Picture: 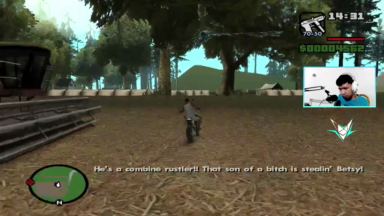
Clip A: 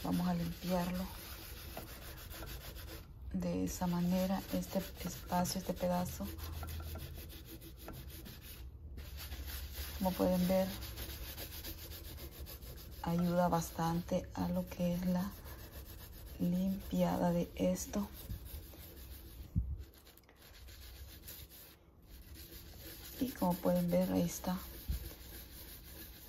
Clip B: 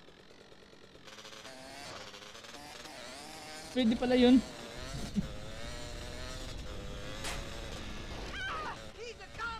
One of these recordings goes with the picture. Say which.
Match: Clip B